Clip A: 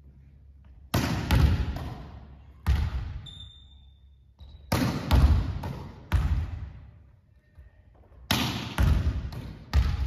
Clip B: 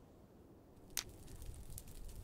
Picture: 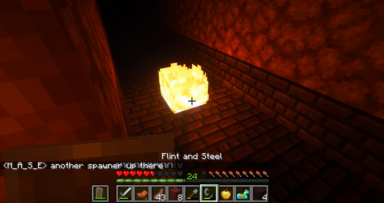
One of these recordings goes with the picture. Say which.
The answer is B